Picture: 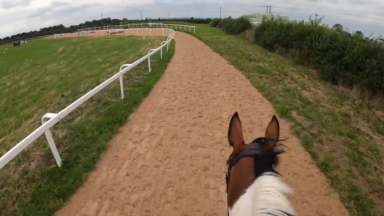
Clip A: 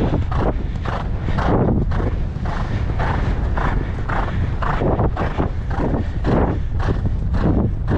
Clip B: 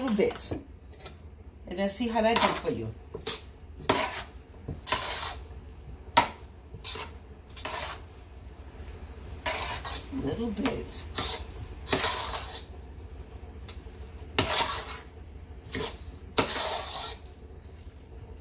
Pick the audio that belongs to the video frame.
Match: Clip A